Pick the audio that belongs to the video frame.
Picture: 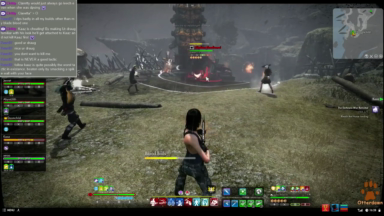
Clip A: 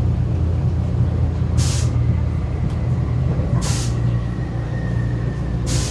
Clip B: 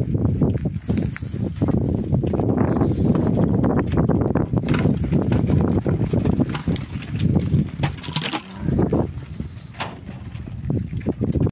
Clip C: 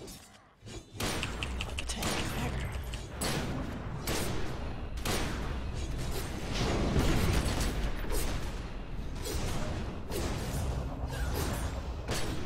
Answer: C